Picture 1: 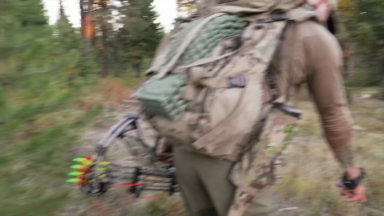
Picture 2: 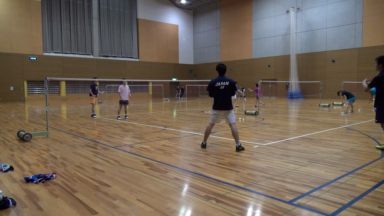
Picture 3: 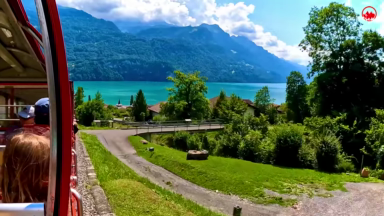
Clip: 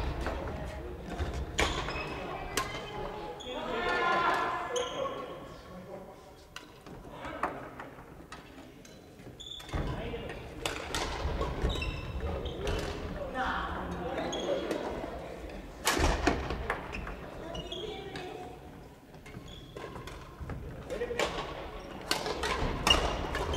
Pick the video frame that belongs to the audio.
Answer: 2